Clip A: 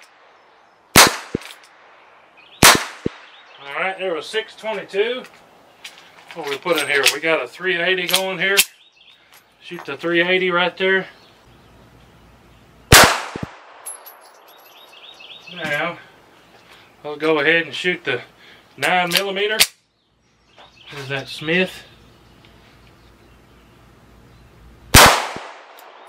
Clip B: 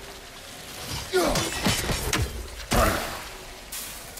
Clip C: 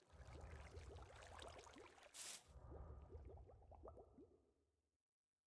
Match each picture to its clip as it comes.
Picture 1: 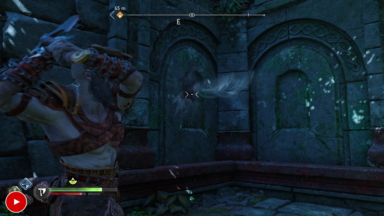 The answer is B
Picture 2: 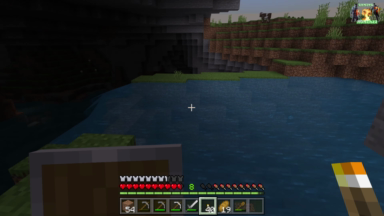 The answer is C